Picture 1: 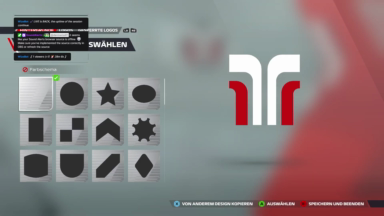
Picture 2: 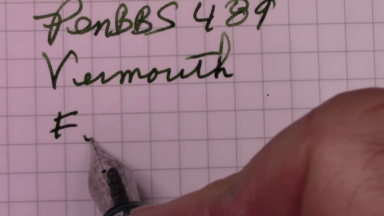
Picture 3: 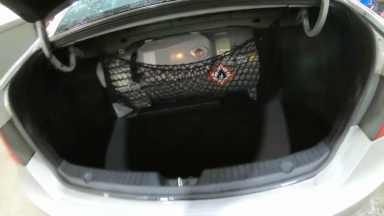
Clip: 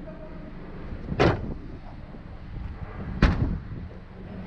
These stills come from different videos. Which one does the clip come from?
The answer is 3